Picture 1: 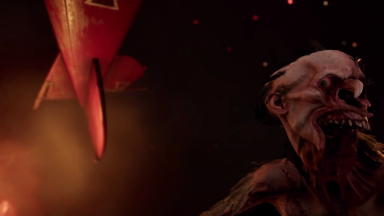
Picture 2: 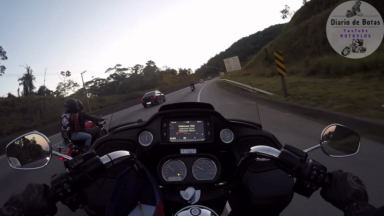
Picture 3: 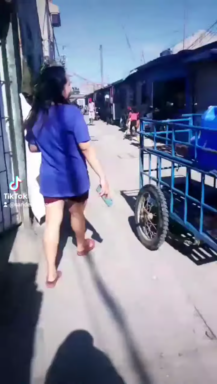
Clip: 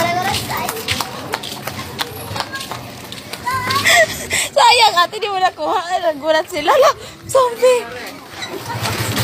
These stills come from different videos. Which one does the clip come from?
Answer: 3